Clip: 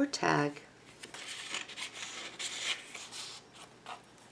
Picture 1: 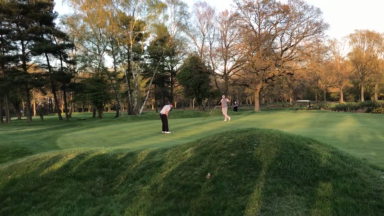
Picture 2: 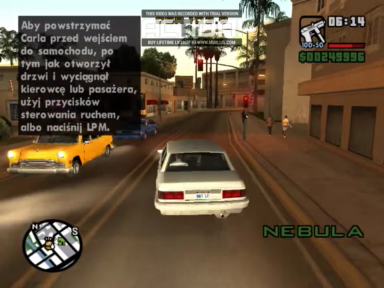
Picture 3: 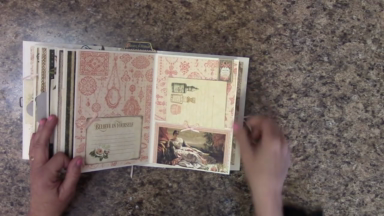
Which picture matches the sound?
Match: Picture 3